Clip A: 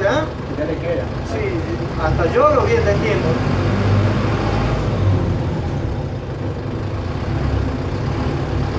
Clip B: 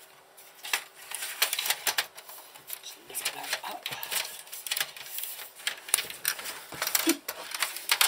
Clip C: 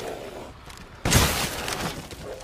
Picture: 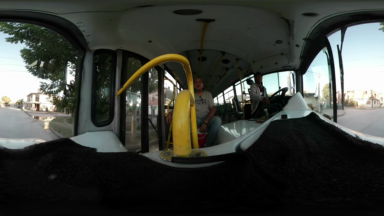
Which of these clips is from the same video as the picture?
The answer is A